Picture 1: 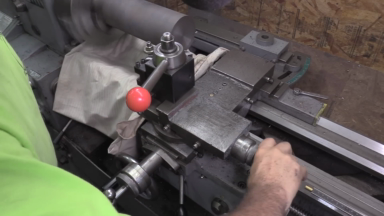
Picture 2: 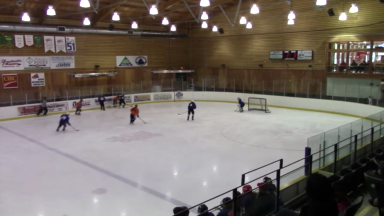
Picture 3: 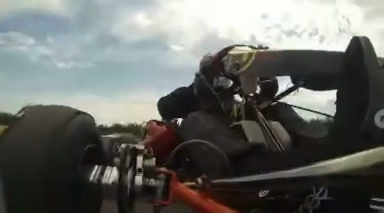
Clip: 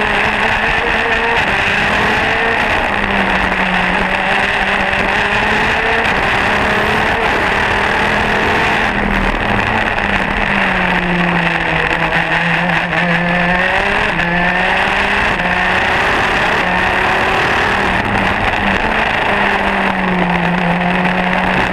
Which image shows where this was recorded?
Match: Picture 3